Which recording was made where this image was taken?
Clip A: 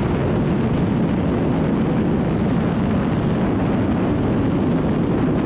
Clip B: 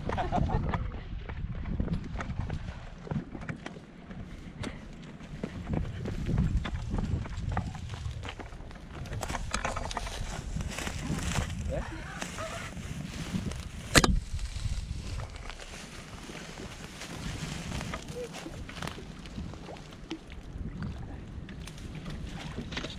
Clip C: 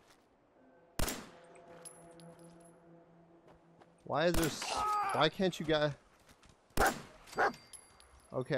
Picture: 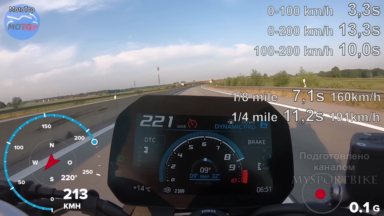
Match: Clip A